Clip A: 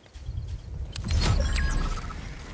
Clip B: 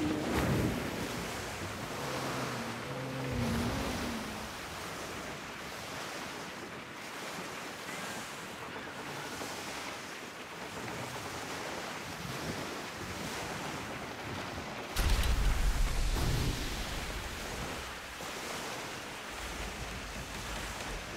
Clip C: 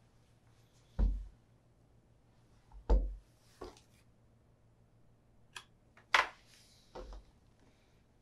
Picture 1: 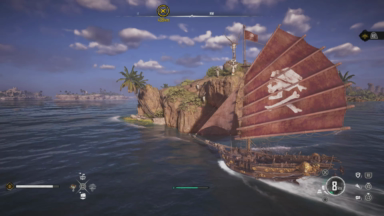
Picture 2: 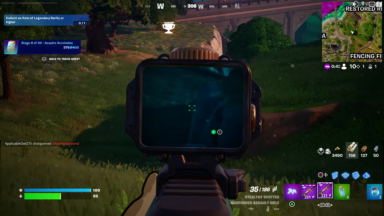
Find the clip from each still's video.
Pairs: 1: B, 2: A